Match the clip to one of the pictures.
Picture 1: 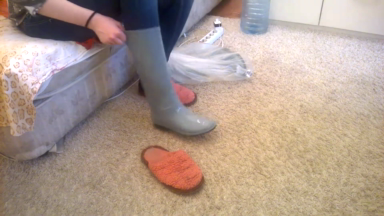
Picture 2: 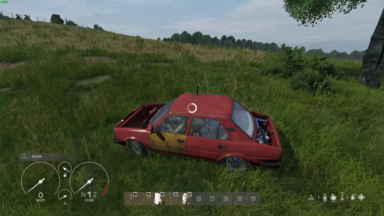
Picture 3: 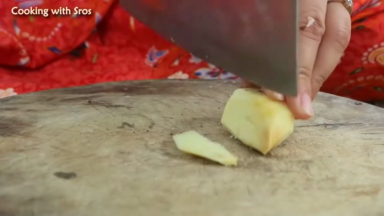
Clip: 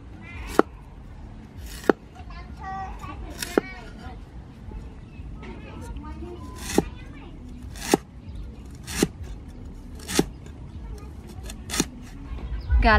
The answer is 3